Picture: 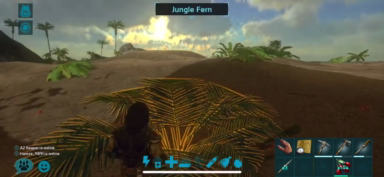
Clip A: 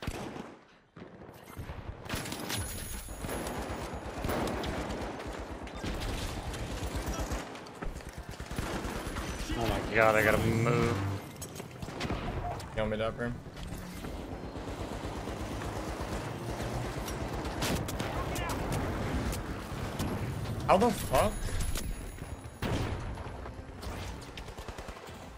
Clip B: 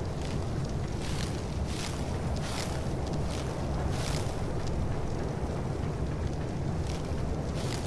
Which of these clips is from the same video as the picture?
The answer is B